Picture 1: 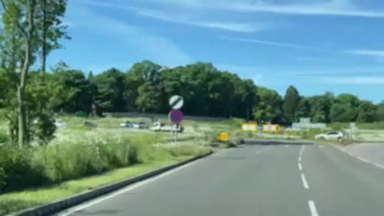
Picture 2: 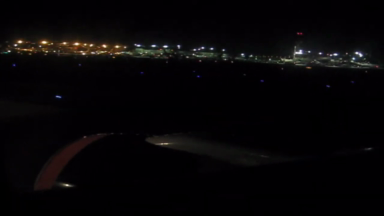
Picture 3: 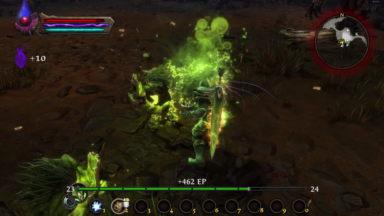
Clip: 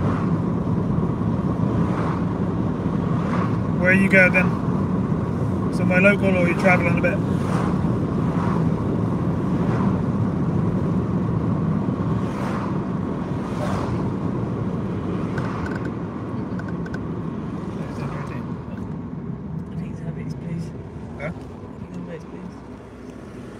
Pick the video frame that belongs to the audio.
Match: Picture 1